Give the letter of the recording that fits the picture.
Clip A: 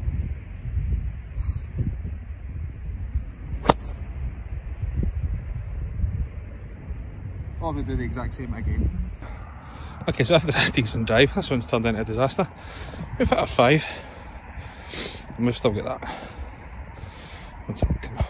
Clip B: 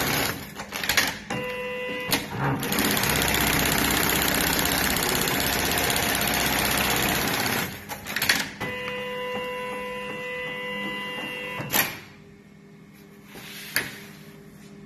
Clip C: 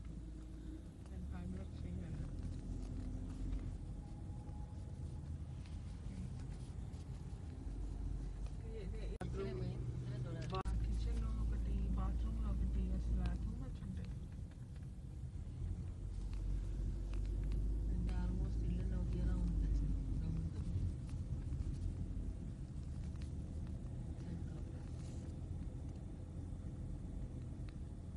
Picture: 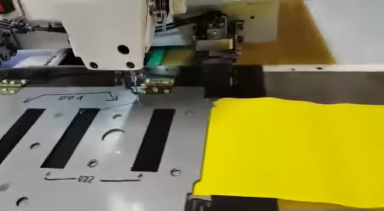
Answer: B